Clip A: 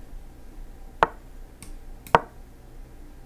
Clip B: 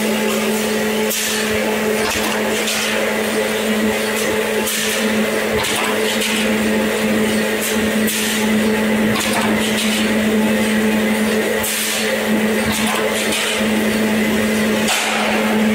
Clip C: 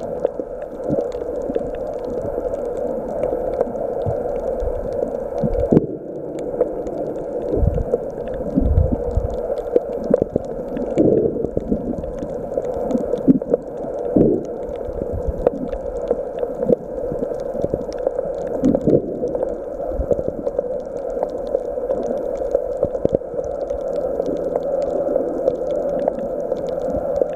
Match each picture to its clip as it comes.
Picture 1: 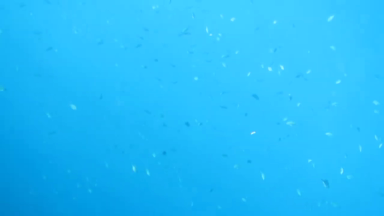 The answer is C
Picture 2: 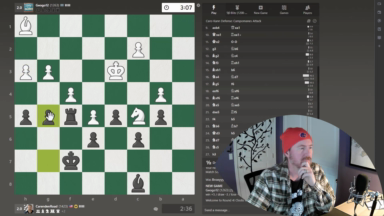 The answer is A